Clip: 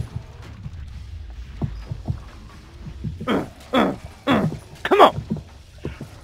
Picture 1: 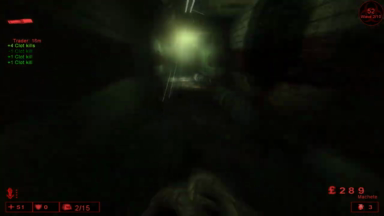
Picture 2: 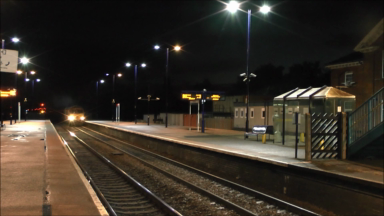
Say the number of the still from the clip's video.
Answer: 1